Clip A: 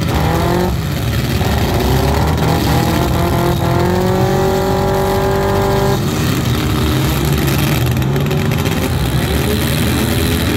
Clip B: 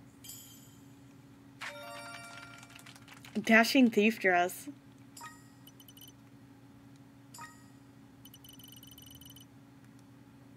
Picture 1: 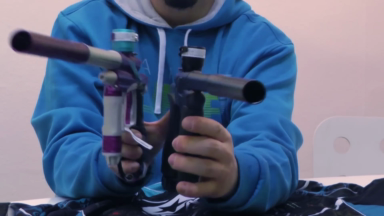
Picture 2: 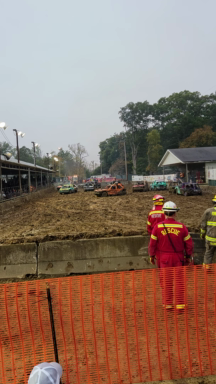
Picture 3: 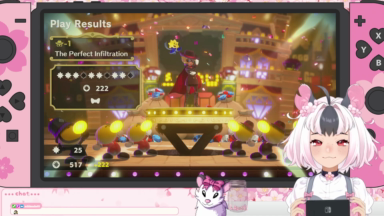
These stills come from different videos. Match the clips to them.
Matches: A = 2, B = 3